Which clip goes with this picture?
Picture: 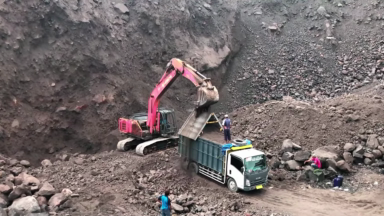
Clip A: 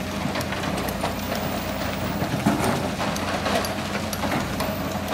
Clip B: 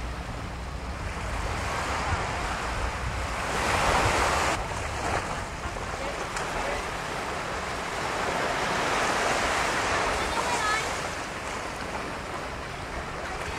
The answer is A